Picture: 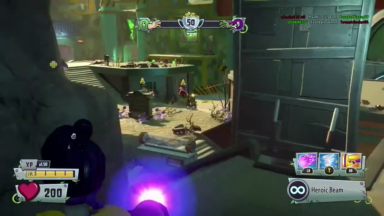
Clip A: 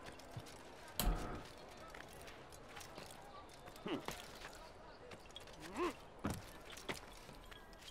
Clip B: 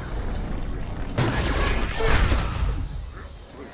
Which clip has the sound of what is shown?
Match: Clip B